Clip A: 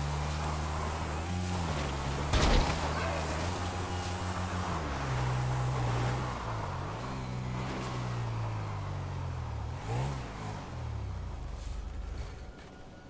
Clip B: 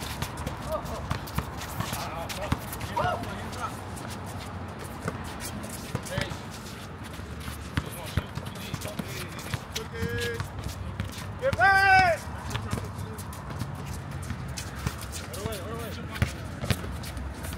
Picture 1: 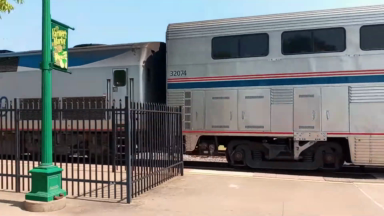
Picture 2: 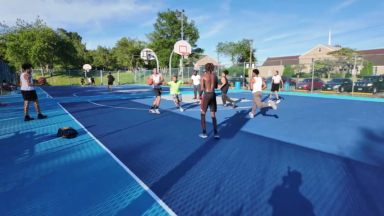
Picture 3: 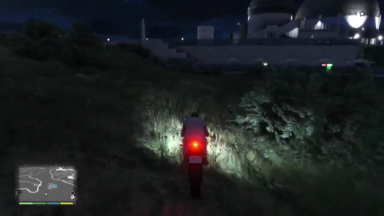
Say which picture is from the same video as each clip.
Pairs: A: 3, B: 2